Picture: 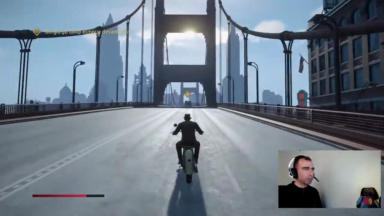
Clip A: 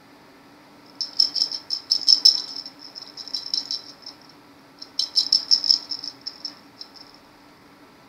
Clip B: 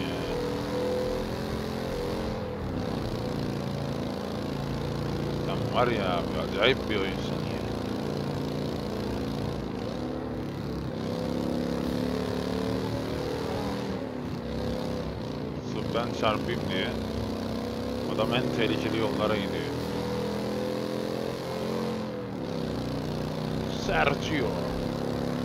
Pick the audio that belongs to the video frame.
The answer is B